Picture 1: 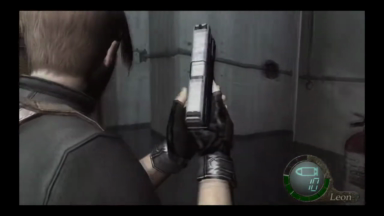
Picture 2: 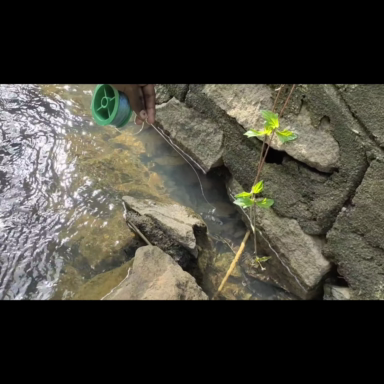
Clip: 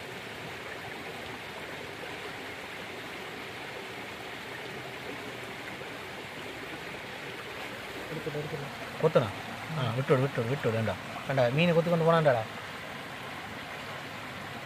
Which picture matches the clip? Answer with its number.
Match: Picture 2